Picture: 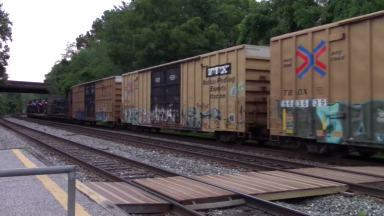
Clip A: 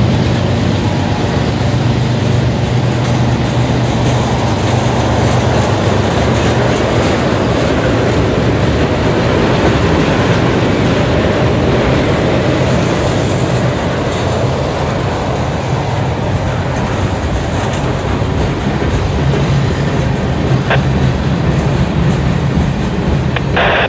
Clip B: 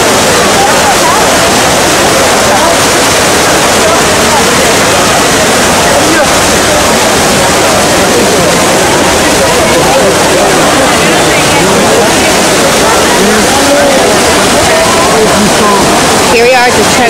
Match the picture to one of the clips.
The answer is A